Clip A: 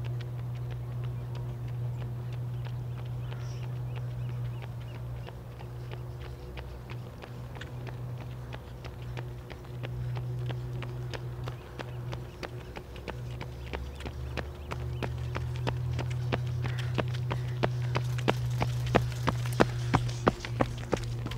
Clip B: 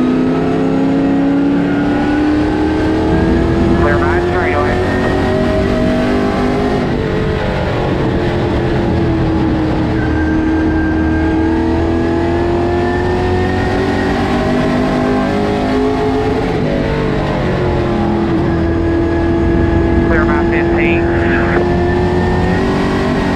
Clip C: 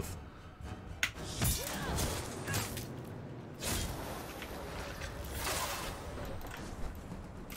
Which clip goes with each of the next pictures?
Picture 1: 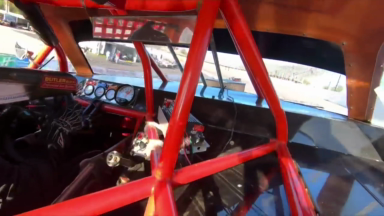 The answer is B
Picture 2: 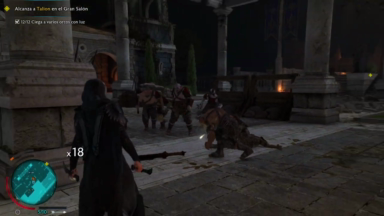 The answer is C